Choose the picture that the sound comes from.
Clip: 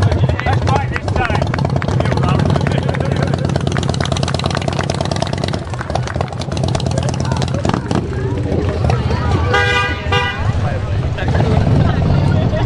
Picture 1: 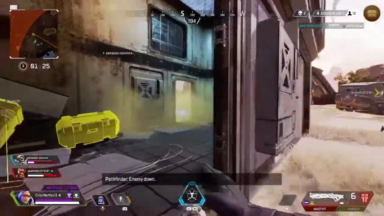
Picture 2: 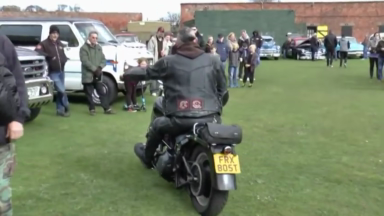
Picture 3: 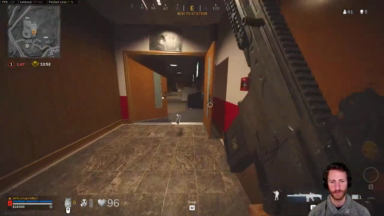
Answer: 2